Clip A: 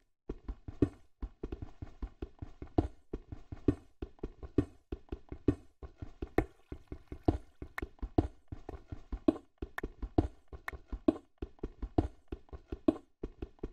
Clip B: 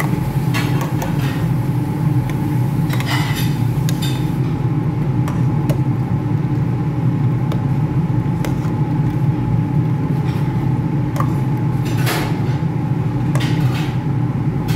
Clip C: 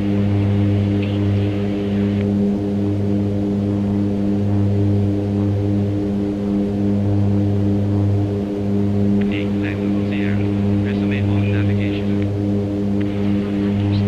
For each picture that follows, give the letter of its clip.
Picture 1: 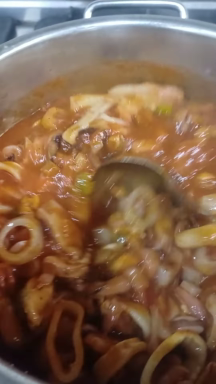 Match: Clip B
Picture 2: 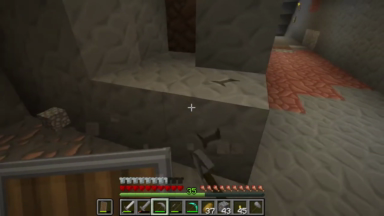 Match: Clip A